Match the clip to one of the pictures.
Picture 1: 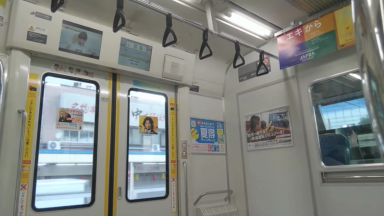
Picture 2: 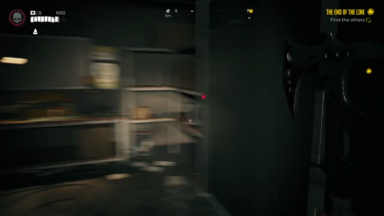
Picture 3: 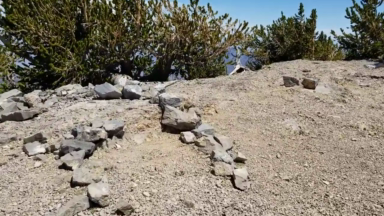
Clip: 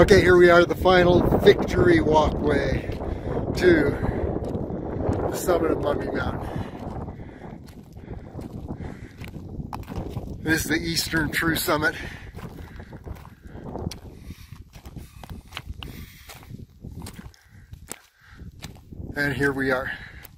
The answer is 3